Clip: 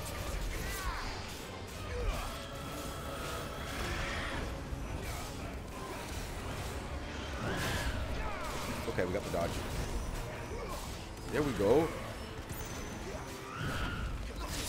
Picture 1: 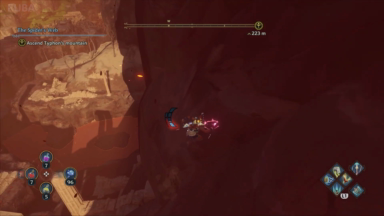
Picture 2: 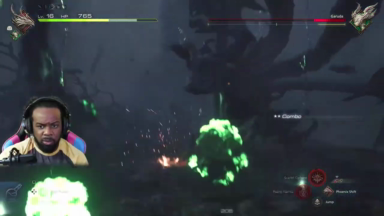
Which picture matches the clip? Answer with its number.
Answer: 2